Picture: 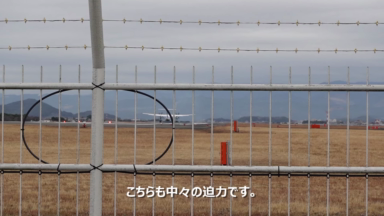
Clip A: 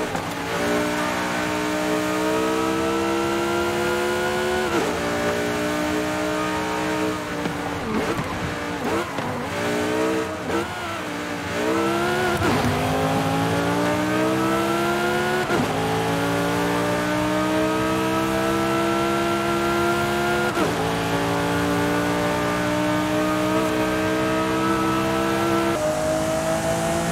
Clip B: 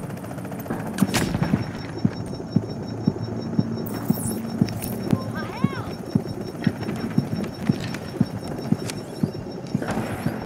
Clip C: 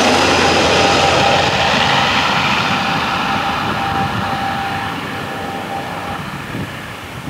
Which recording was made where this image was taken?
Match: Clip C